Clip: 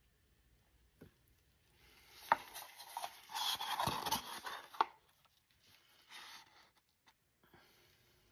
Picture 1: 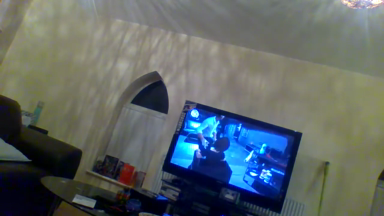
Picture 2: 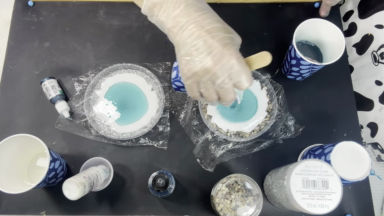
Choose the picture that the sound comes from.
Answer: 2